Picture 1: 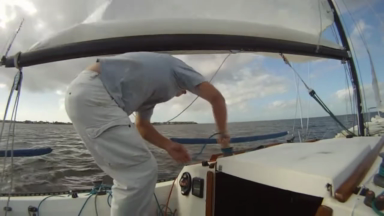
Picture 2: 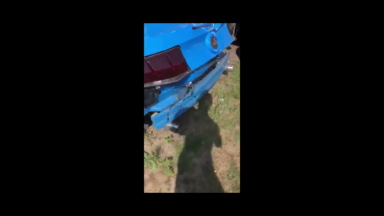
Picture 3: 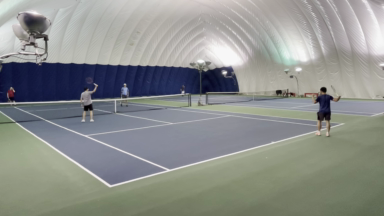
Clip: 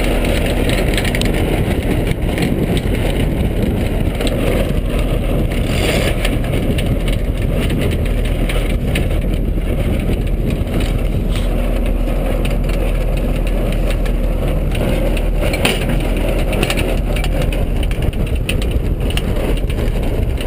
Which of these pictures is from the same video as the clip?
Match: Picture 1